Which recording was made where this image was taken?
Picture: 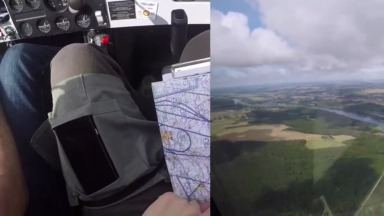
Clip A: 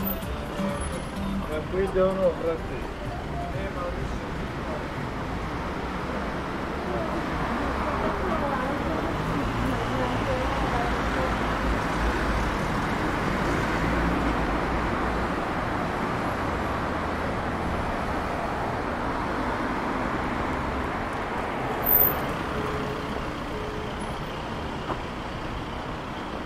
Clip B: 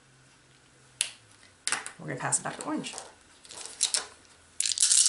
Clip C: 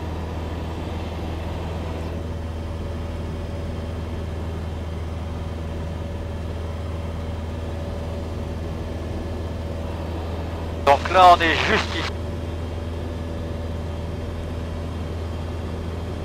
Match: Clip C